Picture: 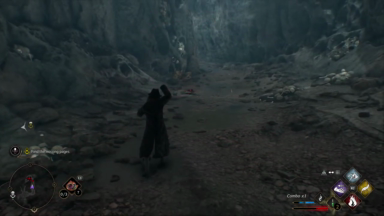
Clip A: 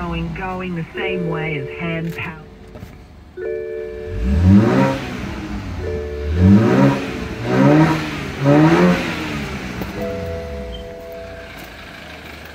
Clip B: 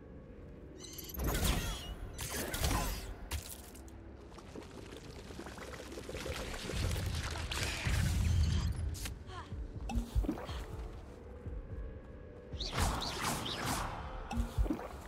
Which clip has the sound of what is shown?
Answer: B